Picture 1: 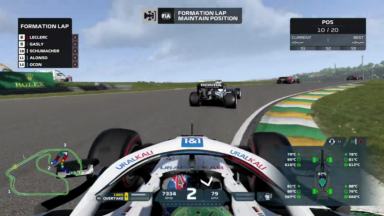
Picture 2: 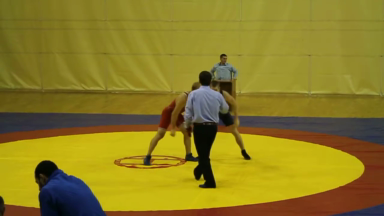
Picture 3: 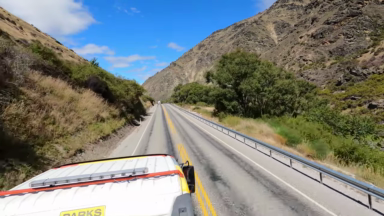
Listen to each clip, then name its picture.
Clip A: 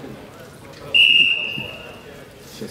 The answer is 2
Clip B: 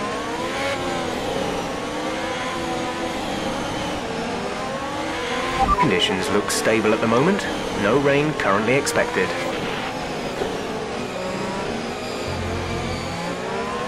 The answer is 1